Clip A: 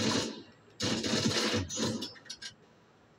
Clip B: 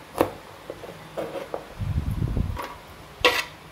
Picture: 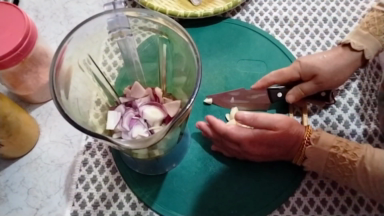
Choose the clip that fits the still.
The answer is B